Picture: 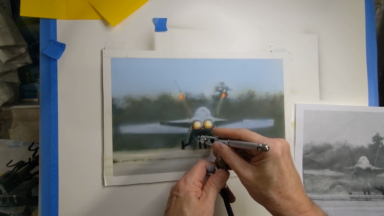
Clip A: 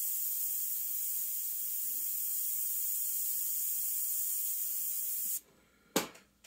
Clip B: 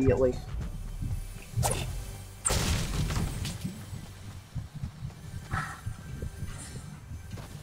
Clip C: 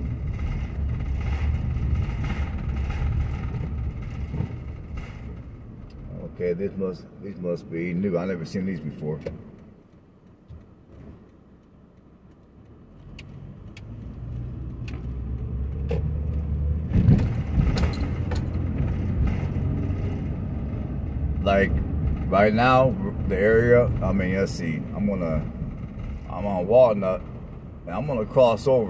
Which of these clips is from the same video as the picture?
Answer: A